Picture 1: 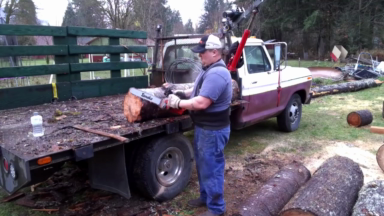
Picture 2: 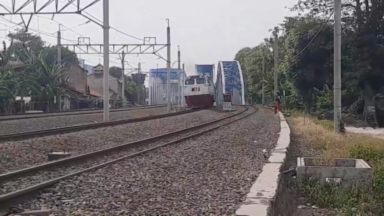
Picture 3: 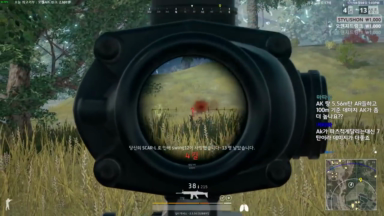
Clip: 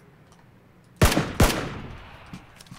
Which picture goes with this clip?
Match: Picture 3